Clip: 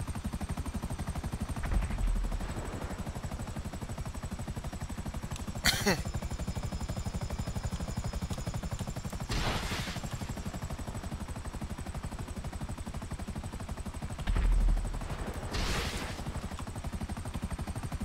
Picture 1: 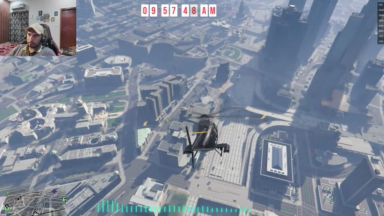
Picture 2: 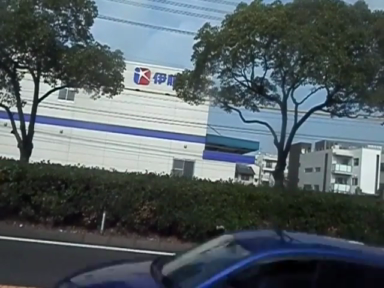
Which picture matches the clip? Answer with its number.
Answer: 1